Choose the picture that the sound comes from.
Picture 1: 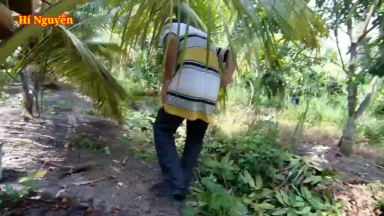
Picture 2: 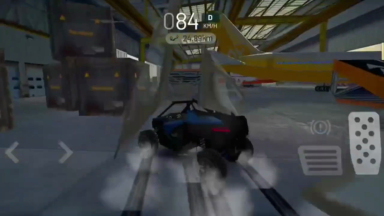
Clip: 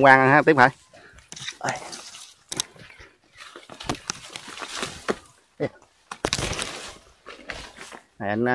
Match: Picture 1